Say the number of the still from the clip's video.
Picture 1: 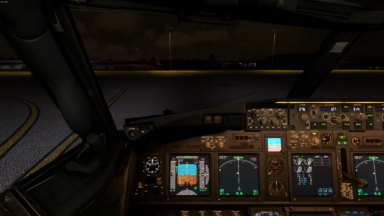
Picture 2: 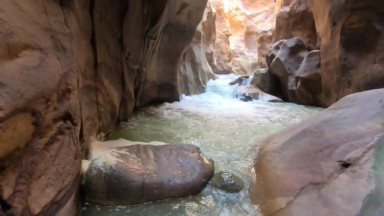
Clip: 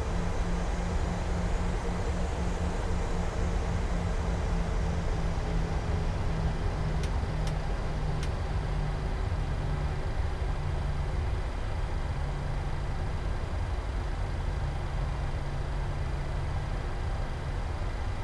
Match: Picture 1